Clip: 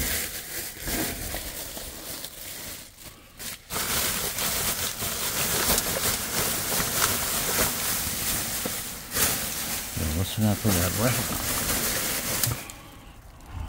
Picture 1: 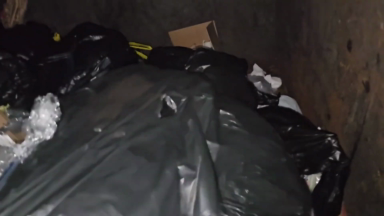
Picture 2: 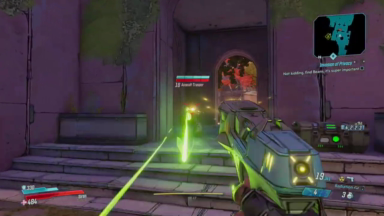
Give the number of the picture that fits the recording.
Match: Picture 1